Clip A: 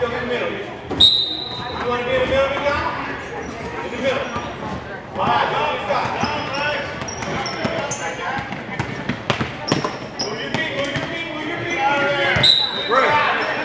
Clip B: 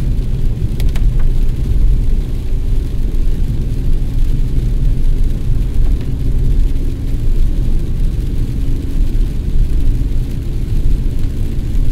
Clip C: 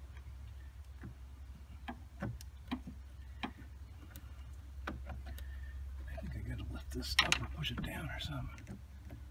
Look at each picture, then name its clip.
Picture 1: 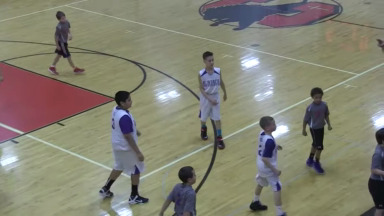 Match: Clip A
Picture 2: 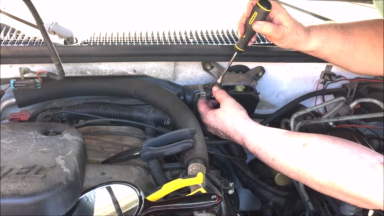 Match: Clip C